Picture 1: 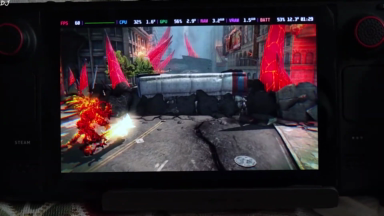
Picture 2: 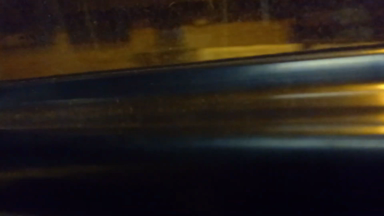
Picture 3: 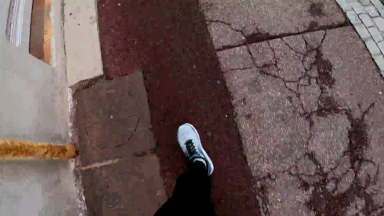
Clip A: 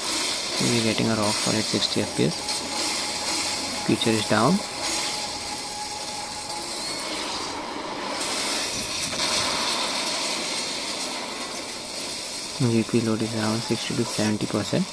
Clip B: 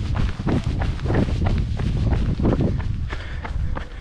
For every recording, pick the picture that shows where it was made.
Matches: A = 1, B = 3